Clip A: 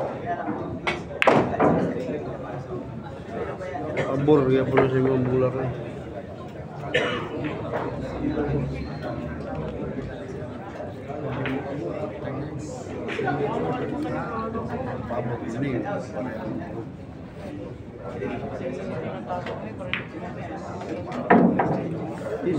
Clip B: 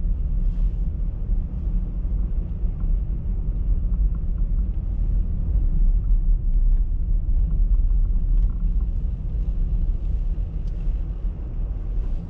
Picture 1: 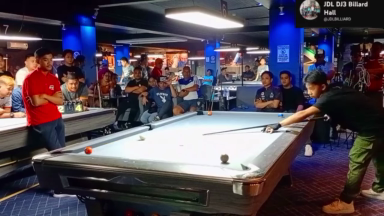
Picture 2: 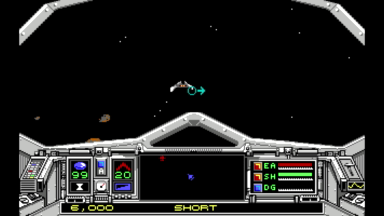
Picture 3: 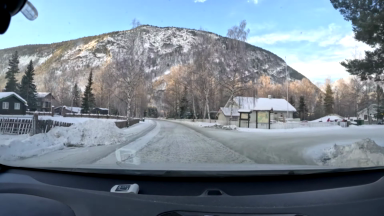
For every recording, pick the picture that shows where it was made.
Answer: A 1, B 3